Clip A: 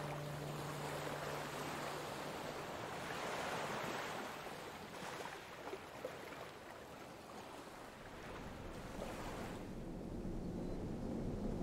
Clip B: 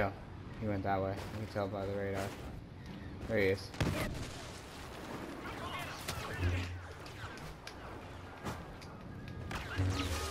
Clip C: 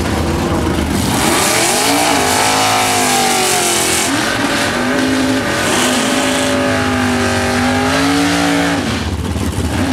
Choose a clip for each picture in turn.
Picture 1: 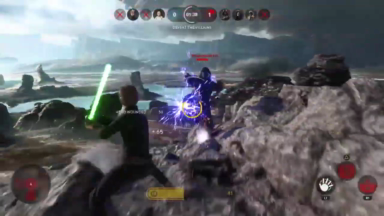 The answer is B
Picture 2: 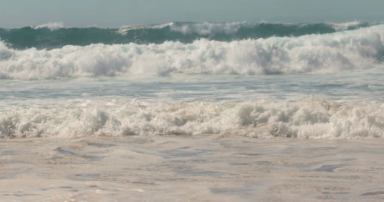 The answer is A